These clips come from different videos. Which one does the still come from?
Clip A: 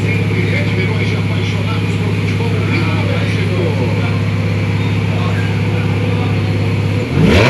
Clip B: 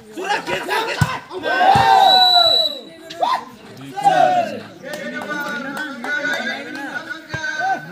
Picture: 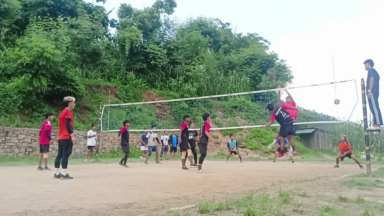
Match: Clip B